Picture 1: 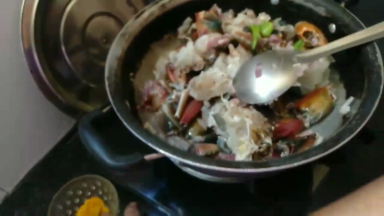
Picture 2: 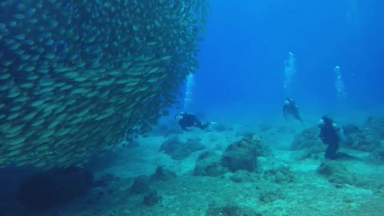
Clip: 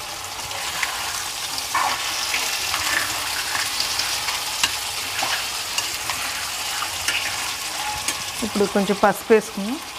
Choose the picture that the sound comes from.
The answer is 1